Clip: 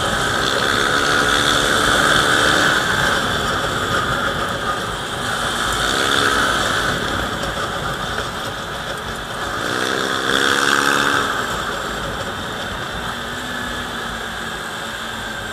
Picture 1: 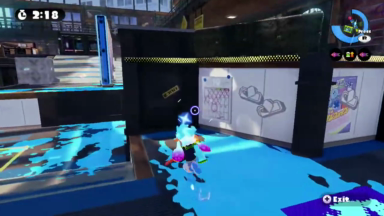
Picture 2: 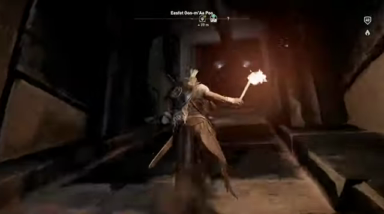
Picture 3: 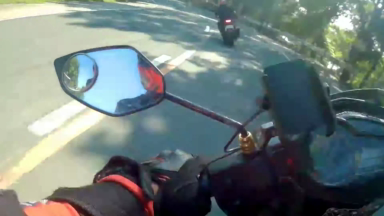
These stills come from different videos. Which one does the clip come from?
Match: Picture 3